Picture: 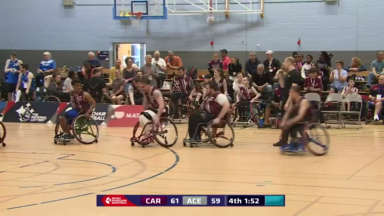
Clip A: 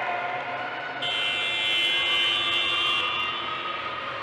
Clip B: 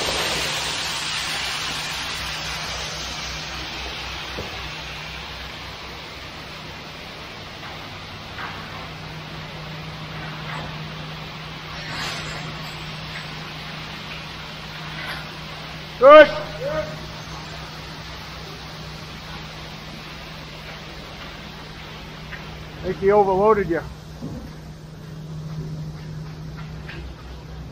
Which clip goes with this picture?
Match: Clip A